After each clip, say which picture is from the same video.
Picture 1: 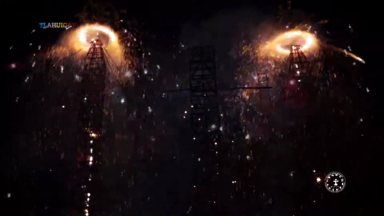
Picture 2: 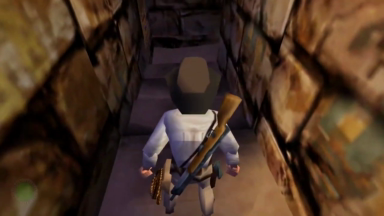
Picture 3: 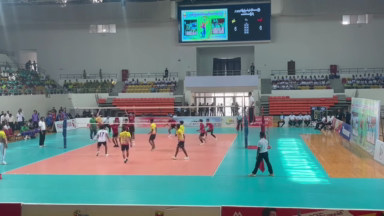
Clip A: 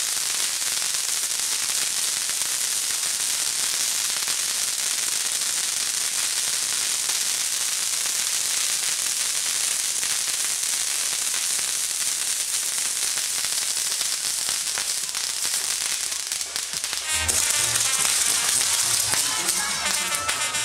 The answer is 1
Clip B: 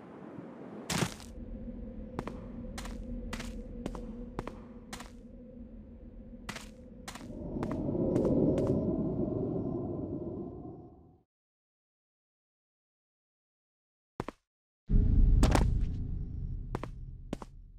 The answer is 2